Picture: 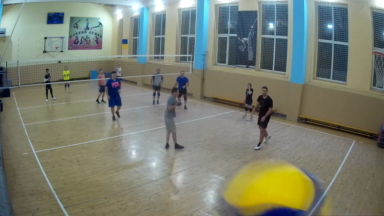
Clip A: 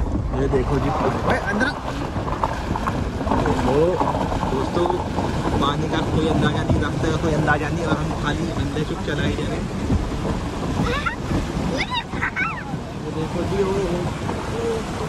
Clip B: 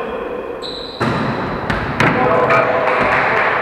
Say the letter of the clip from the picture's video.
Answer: B